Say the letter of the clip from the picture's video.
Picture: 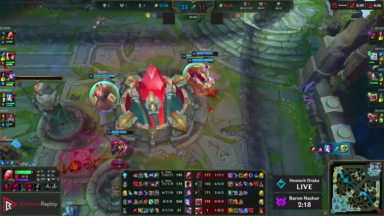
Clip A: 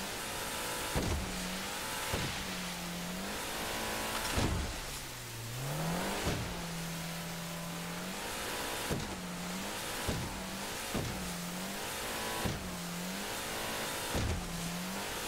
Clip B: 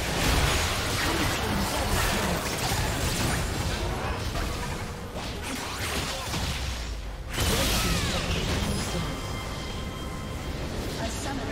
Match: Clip B